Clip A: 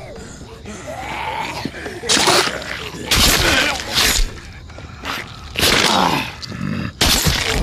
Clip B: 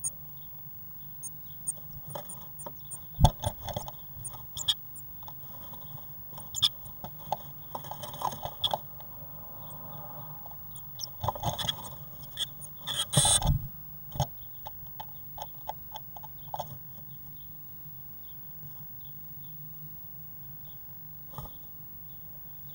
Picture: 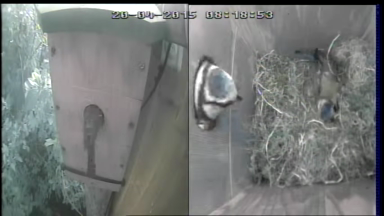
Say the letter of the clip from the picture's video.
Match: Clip B